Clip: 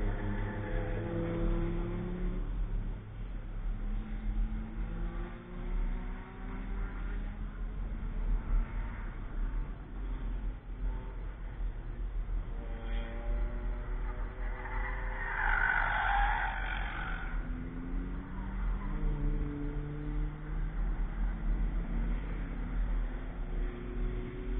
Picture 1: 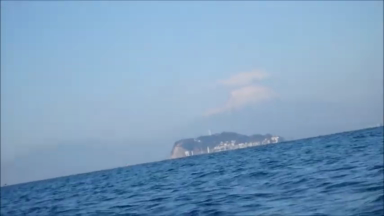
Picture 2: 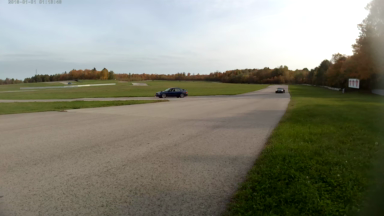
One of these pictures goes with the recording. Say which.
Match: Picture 2